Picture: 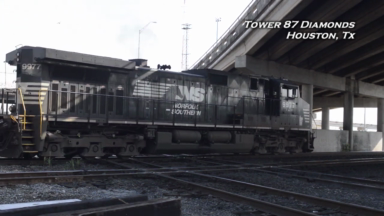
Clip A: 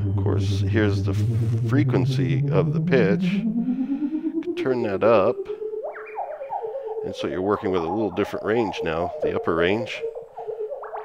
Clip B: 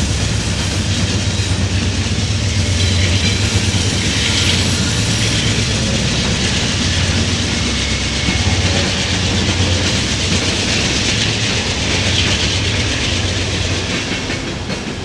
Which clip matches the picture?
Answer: B